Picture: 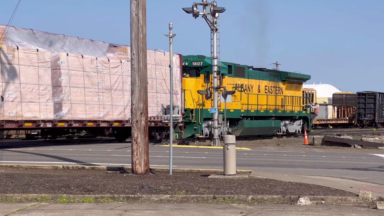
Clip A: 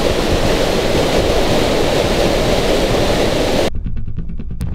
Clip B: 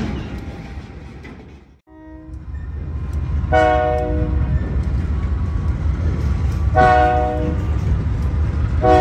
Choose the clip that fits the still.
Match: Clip B